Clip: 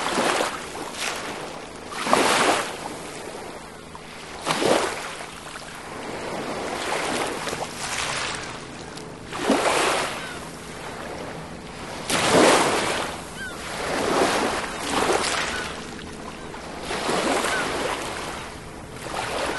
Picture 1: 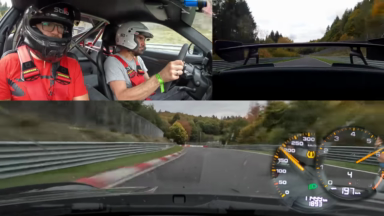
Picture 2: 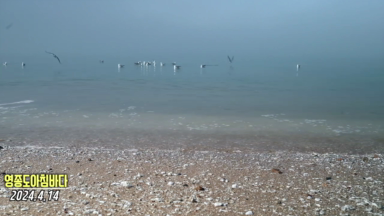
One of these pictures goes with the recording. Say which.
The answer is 2